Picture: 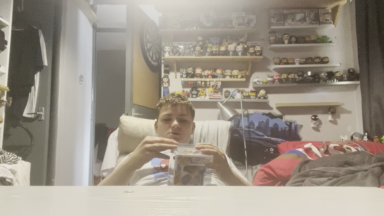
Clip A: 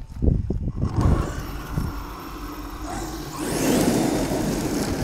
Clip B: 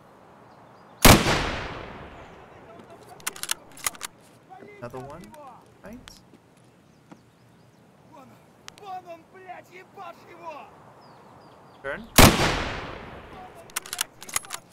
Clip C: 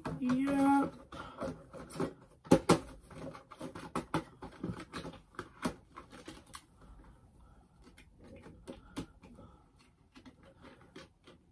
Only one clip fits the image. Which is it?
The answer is C